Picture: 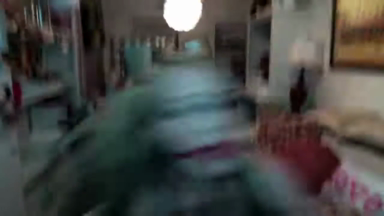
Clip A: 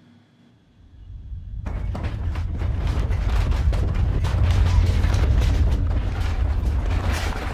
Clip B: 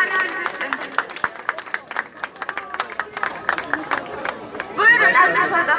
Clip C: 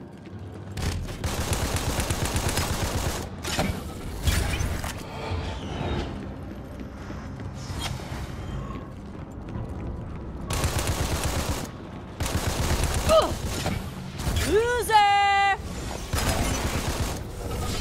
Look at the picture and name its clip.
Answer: A